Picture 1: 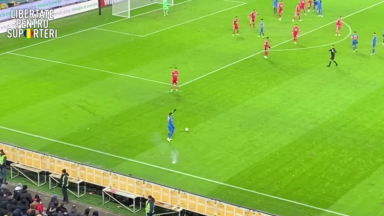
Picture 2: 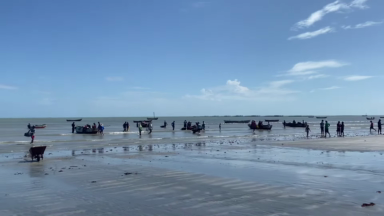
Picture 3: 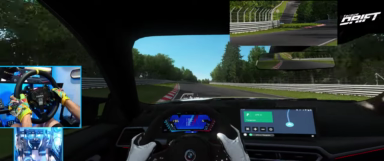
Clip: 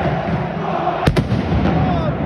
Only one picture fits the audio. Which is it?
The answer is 1